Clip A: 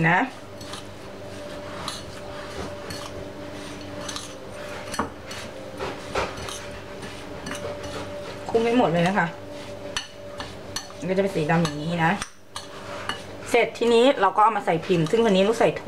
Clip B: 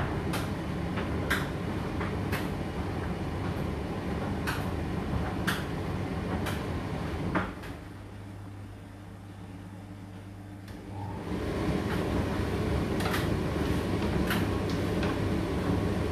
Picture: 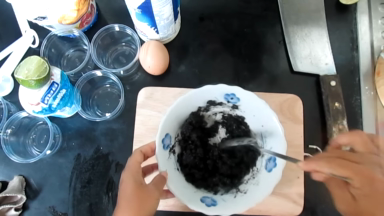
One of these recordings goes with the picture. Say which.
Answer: A